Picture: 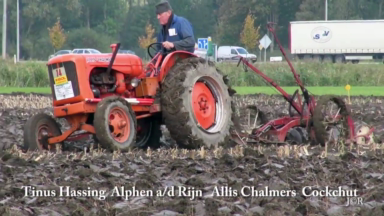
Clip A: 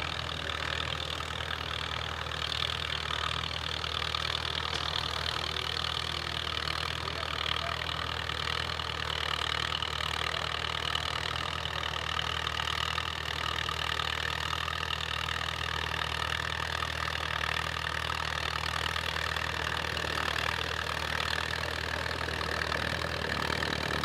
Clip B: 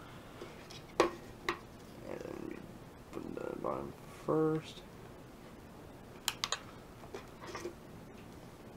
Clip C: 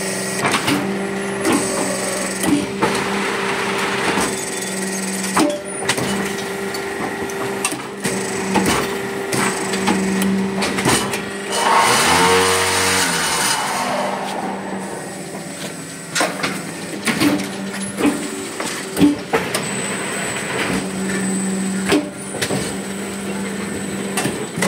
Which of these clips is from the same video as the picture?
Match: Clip A